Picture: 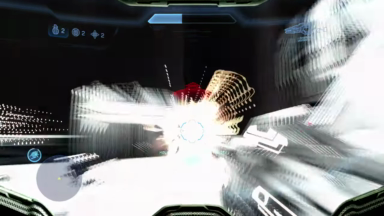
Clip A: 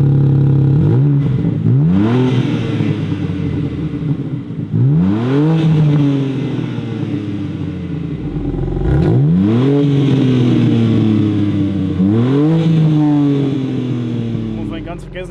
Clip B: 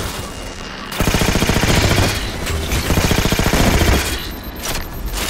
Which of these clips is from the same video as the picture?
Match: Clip B